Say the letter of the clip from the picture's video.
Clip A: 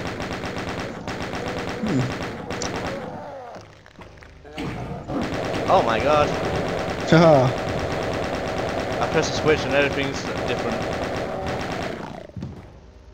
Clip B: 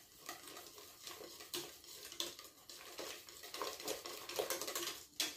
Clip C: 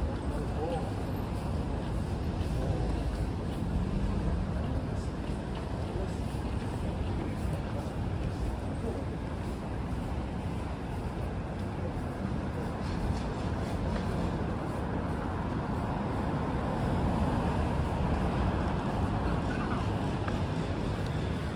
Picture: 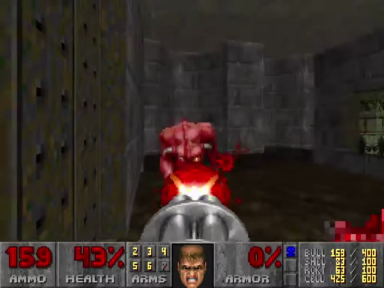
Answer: A